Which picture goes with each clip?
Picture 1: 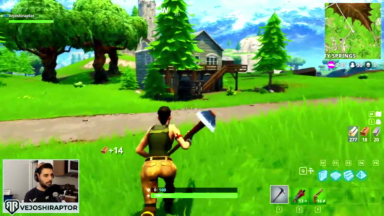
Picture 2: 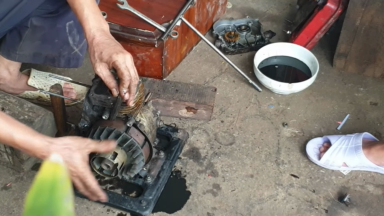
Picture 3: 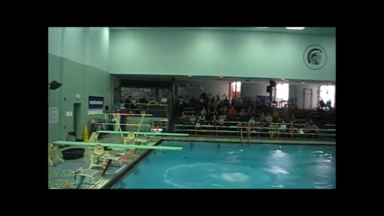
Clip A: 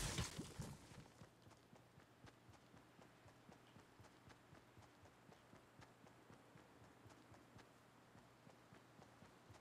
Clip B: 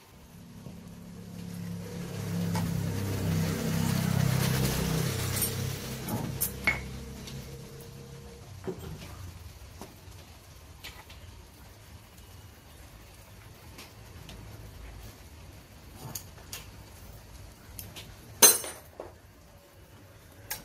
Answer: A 1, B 2